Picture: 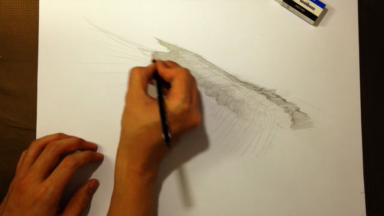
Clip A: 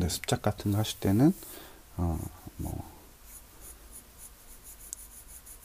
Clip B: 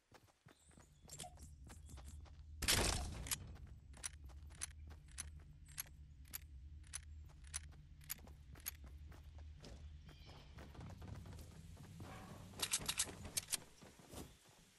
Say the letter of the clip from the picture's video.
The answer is A